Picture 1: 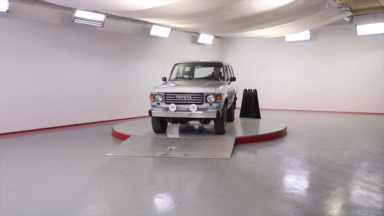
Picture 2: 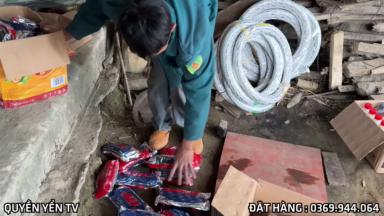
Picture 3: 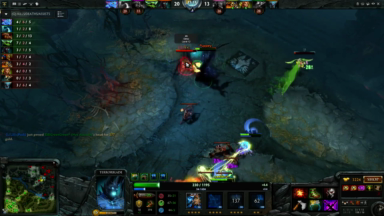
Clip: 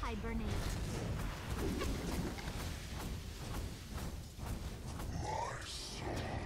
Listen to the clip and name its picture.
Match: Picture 3